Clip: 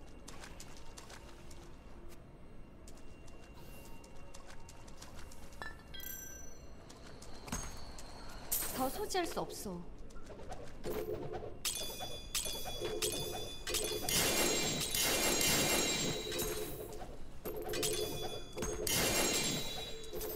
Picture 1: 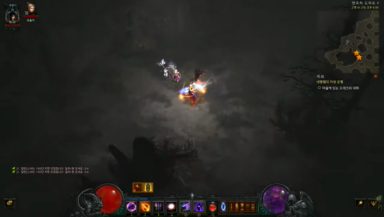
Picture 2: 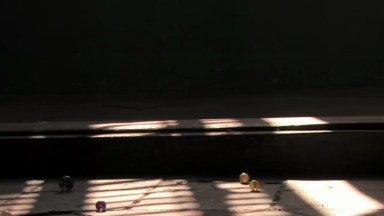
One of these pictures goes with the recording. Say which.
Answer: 1